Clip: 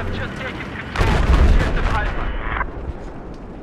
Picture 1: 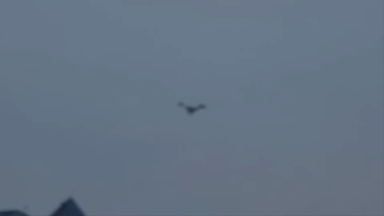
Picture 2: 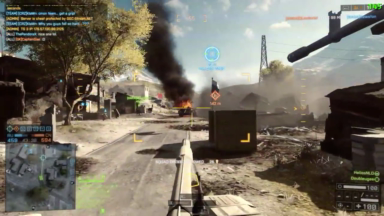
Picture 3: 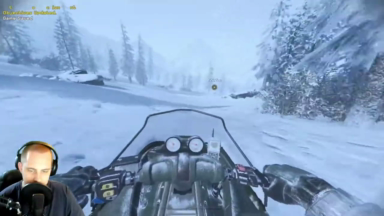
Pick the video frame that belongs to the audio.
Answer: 2